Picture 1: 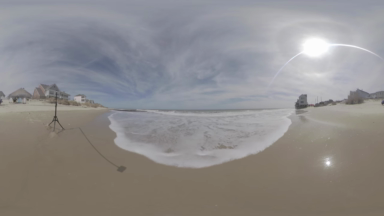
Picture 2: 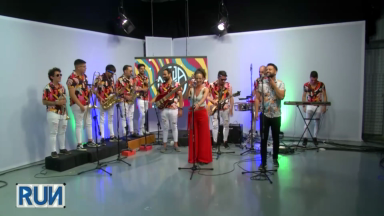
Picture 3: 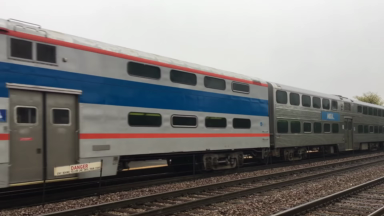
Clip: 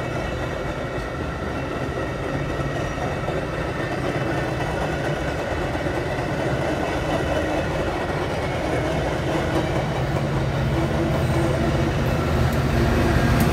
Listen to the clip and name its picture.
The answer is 3